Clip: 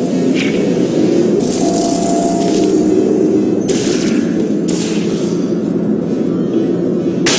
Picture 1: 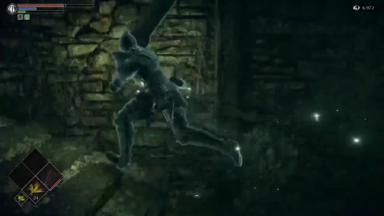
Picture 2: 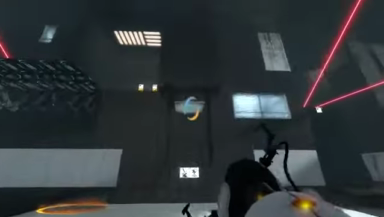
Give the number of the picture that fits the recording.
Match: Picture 2